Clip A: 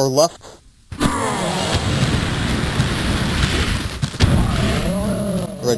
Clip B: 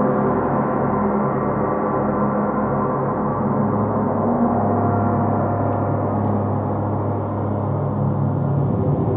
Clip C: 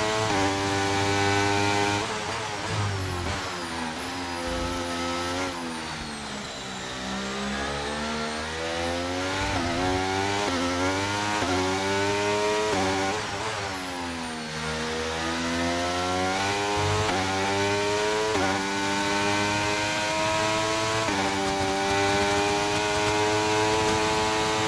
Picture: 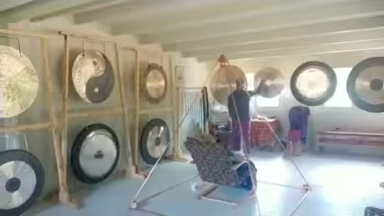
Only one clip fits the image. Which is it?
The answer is B